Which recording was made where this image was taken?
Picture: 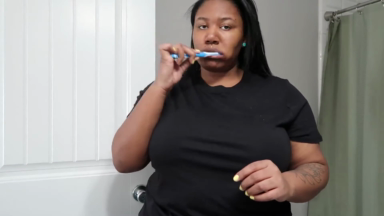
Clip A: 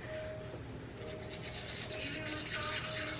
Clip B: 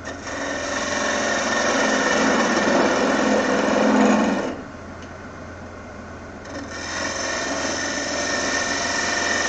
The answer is A